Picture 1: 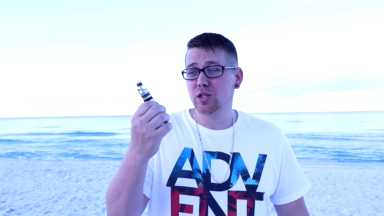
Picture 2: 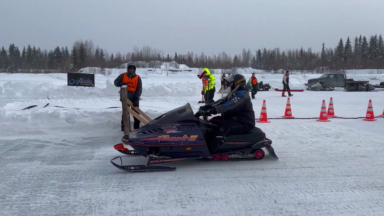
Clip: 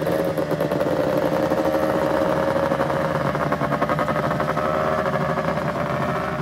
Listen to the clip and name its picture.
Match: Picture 2